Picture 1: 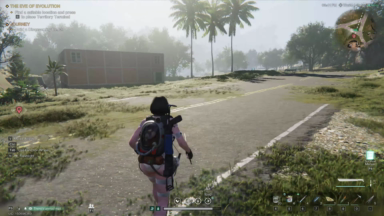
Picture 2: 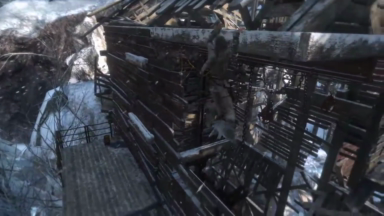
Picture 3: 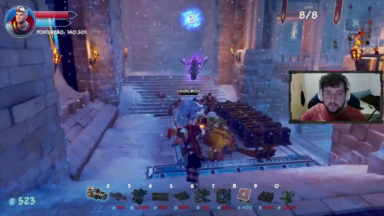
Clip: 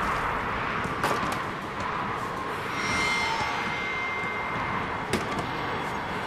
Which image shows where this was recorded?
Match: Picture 2